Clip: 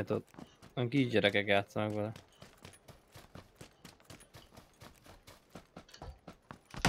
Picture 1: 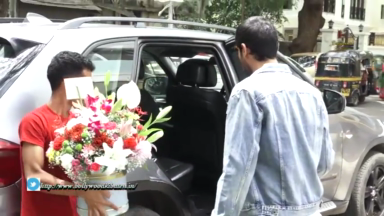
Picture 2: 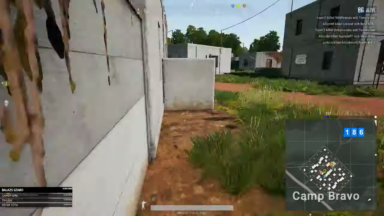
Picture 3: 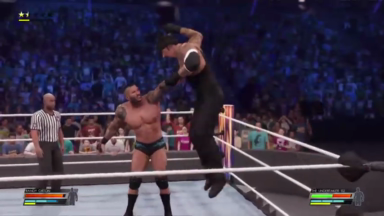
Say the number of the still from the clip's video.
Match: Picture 2